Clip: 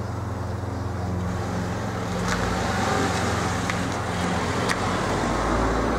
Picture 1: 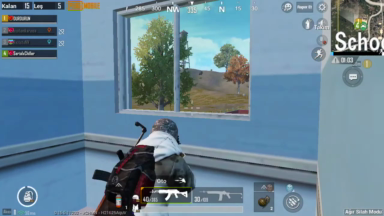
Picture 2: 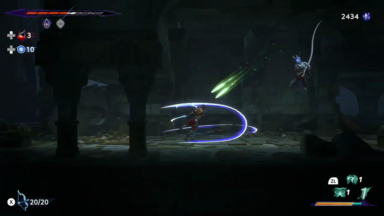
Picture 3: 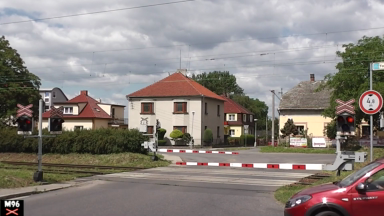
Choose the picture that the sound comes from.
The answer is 3